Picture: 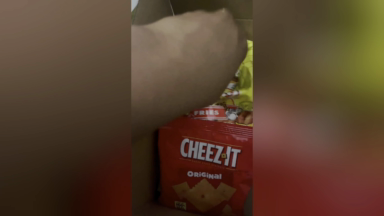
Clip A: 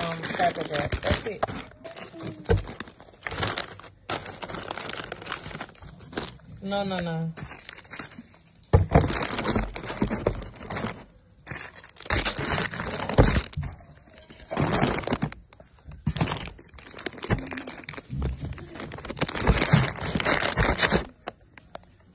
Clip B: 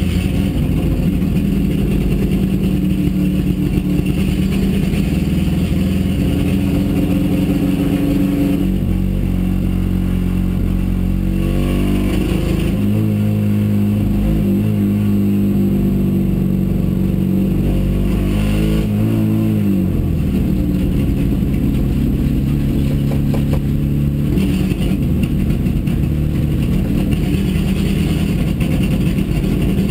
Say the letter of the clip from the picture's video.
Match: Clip A